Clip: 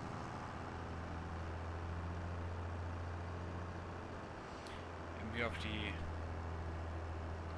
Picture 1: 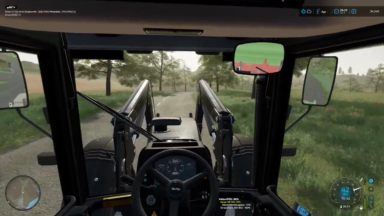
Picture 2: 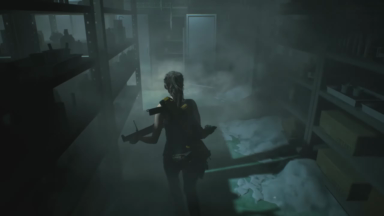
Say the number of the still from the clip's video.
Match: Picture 1